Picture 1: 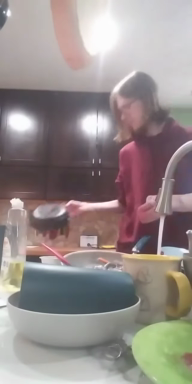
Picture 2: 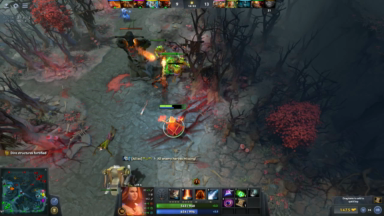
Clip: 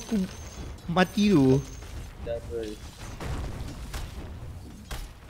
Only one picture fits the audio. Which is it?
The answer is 2